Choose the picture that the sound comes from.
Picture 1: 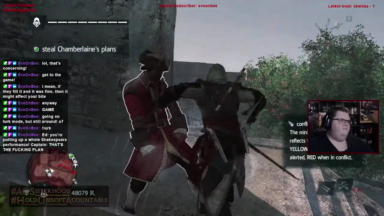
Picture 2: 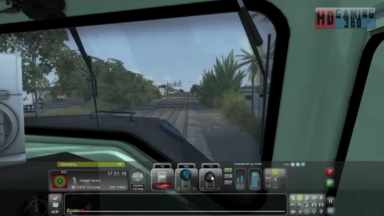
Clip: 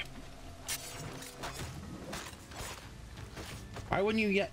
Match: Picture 1